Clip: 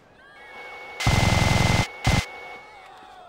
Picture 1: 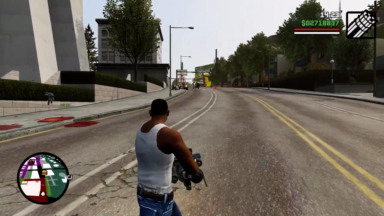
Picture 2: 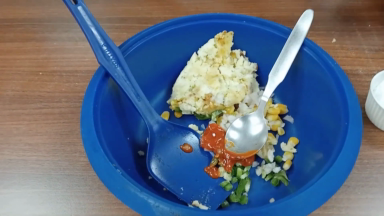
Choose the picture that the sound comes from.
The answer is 1